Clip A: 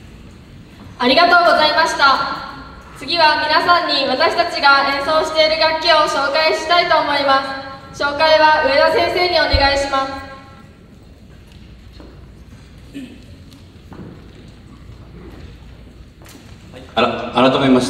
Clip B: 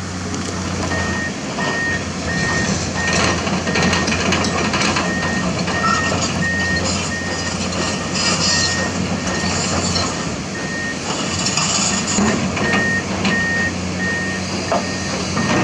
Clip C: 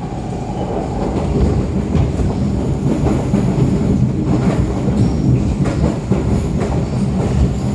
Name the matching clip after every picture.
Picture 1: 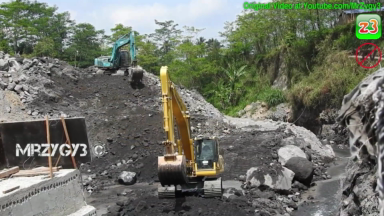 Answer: B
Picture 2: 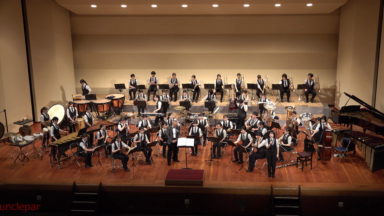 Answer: A